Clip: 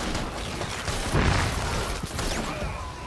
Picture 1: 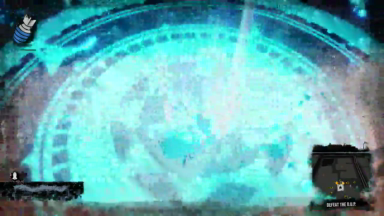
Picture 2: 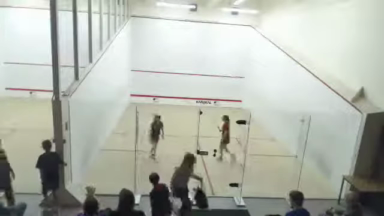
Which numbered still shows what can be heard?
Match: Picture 1